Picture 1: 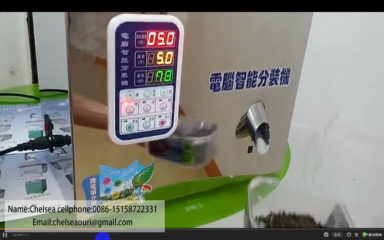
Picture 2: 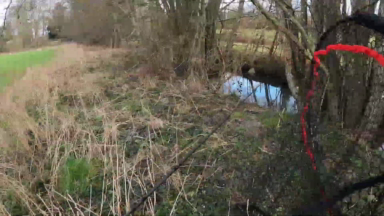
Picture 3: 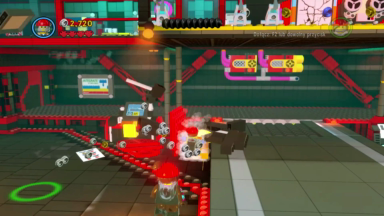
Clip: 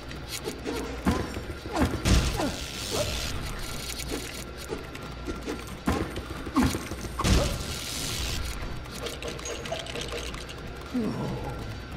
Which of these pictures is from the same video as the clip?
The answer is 3